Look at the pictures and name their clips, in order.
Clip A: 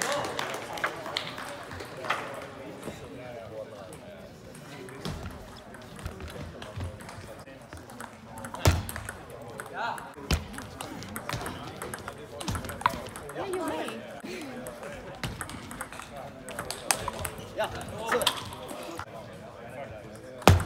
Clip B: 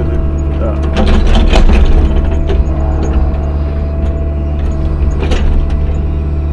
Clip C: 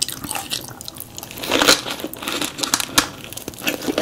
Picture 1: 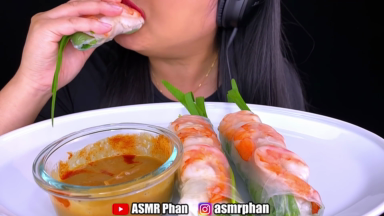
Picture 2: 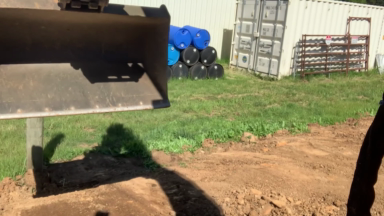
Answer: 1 C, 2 B